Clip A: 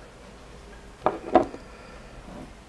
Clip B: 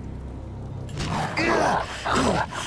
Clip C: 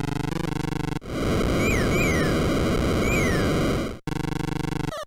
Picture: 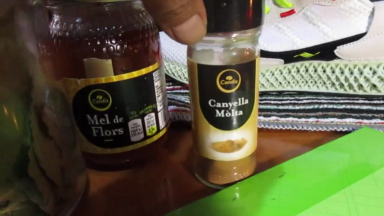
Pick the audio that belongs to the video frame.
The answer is A